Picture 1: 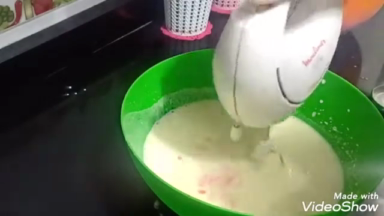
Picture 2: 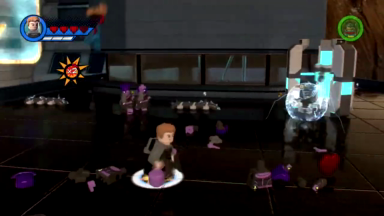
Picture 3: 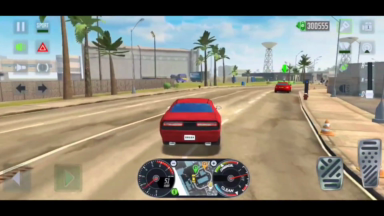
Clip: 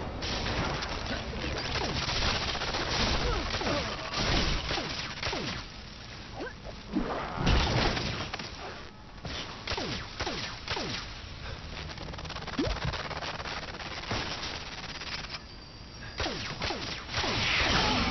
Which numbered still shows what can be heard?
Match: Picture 2